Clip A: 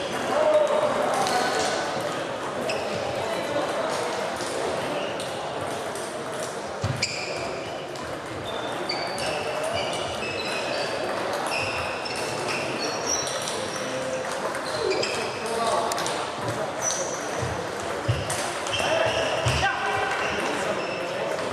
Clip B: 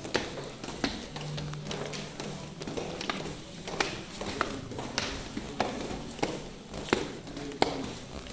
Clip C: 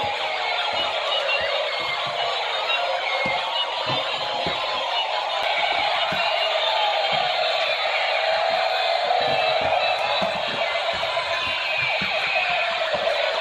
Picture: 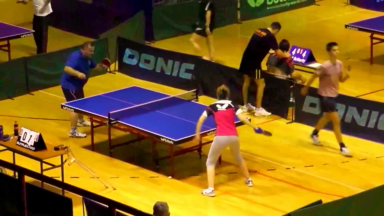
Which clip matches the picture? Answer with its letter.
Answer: A